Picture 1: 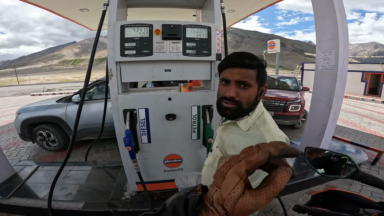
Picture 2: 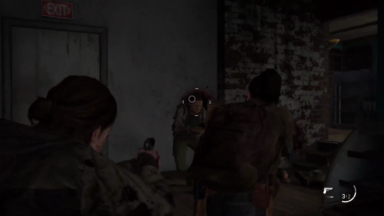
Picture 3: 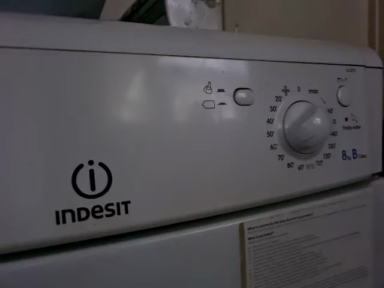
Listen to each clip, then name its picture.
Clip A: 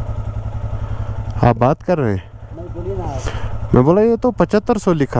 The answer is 1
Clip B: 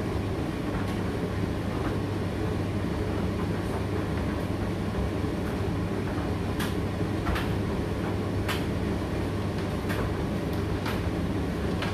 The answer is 3